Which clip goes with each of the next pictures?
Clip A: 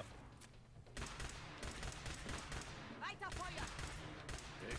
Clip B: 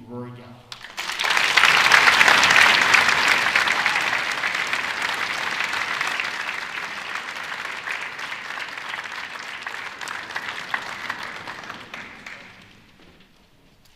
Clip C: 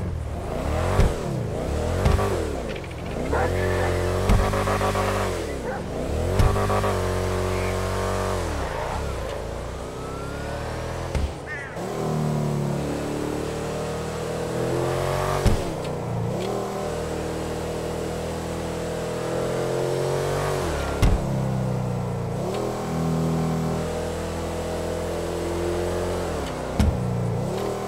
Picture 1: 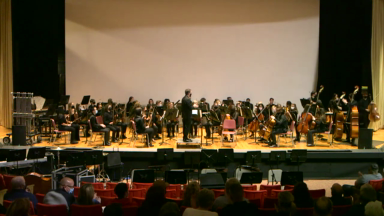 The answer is B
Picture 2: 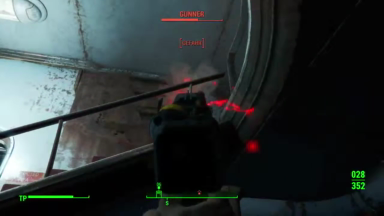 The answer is A